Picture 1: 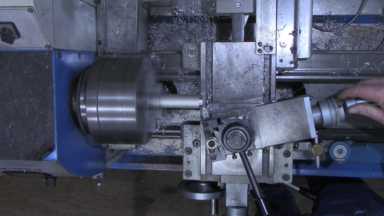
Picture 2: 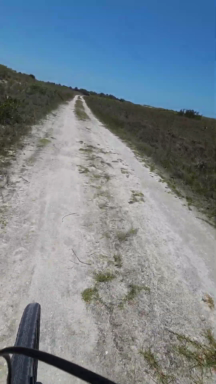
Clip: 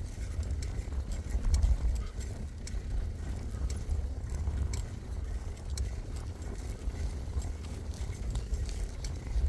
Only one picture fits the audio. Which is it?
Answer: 2